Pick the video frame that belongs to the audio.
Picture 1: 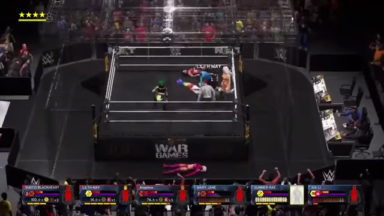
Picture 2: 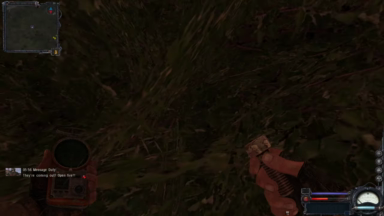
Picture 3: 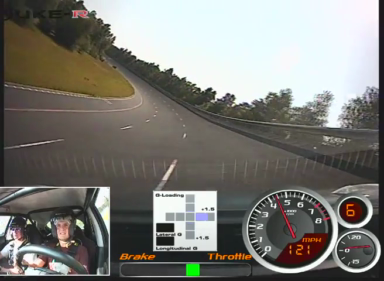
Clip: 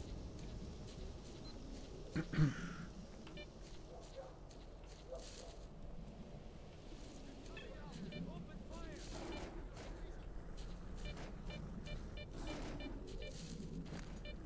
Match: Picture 2